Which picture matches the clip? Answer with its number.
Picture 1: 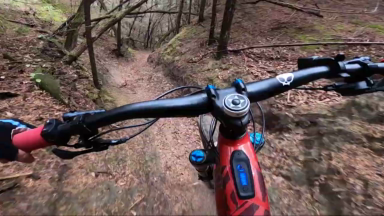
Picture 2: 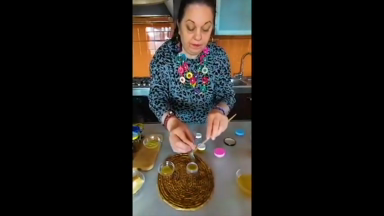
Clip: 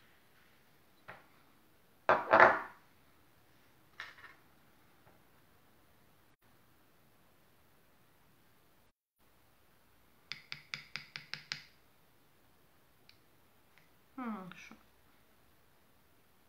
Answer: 2